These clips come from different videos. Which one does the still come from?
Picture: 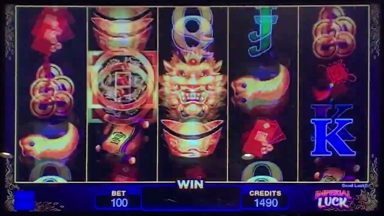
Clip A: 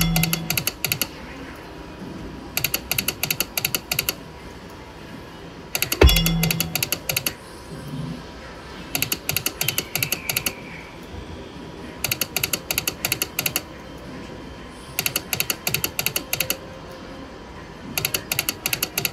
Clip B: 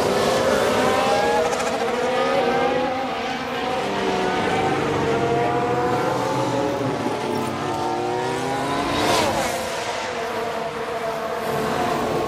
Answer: A